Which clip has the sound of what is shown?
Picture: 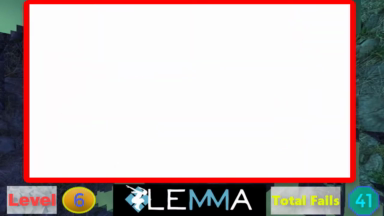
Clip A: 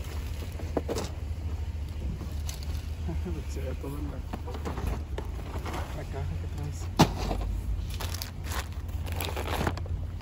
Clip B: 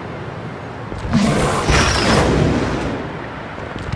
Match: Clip B